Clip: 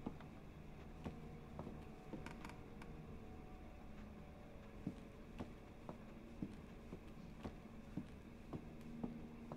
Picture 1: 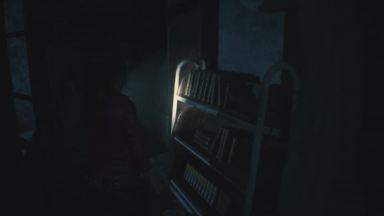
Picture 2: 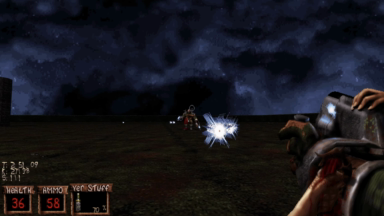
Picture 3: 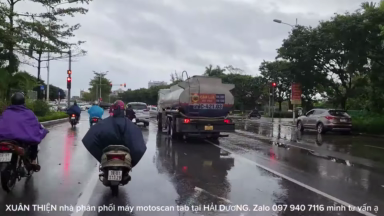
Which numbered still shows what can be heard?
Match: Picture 1